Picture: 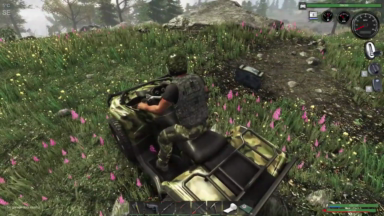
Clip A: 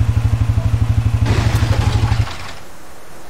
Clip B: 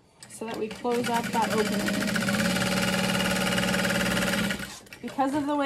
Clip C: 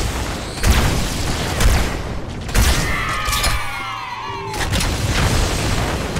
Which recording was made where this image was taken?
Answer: A